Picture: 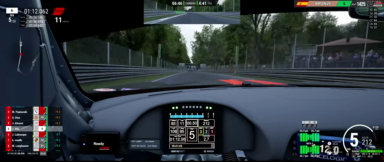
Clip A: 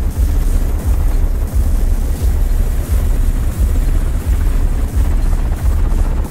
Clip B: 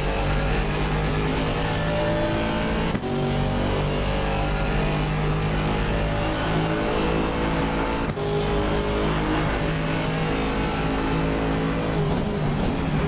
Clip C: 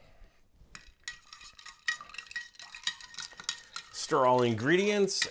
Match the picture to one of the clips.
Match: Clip B